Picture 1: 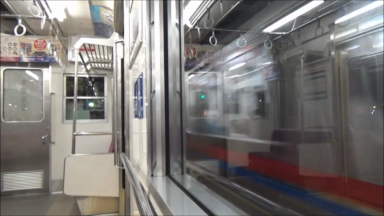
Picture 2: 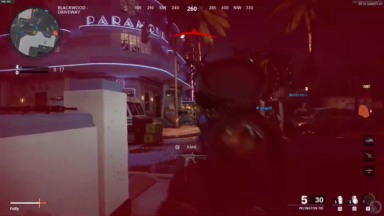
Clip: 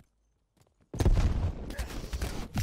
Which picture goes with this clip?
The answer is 2